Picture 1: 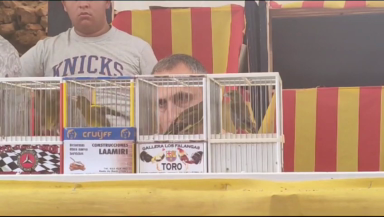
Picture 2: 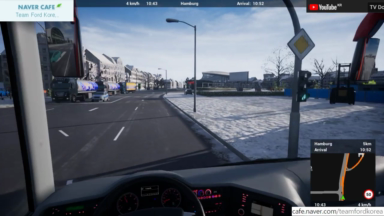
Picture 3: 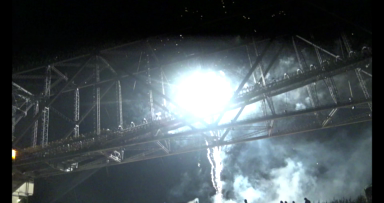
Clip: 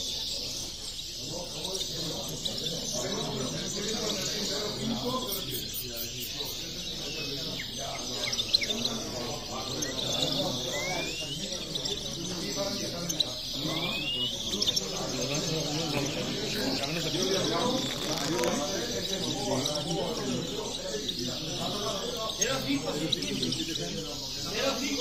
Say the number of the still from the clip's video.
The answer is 1